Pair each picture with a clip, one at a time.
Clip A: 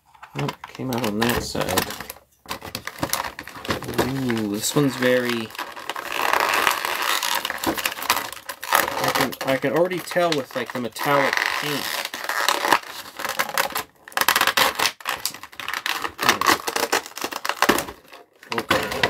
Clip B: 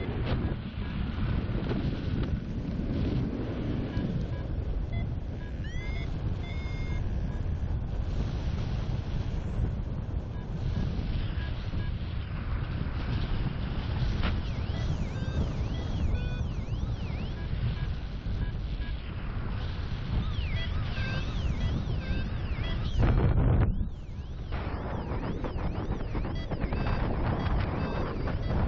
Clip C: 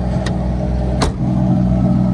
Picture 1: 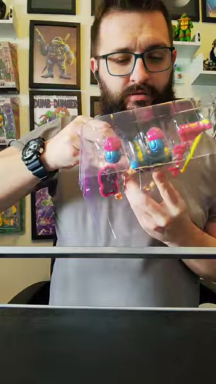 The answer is A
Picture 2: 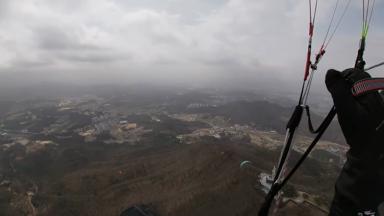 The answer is B